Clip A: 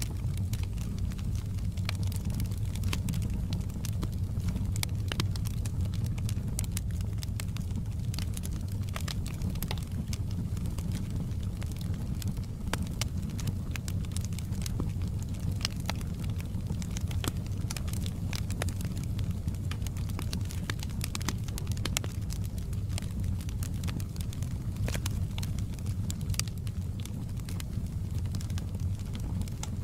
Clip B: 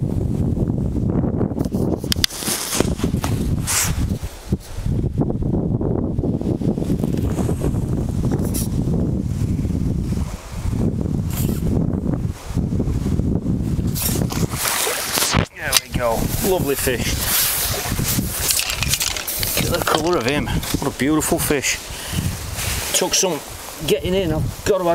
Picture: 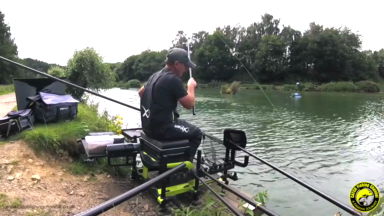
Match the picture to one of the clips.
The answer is B